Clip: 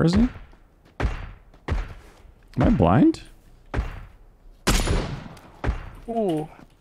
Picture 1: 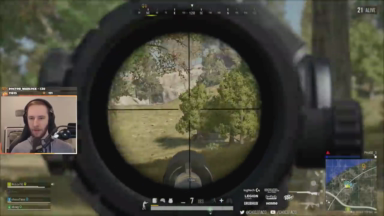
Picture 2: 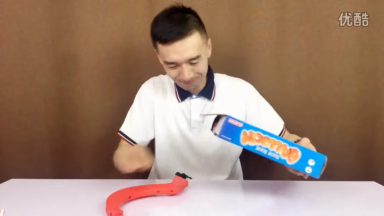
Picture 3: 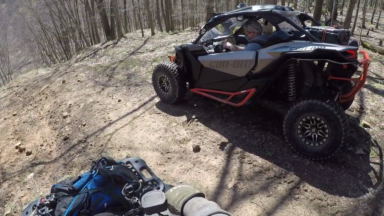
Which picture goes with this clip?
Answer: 1